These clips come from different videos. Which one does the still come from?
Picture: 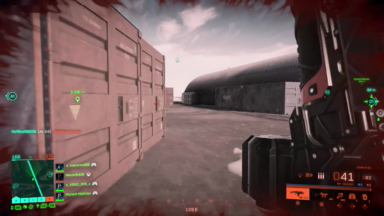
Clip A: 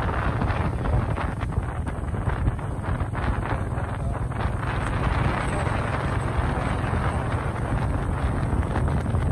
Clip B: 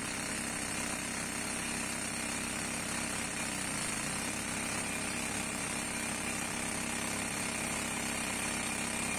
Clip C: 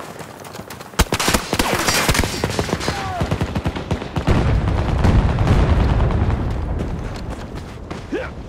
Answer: C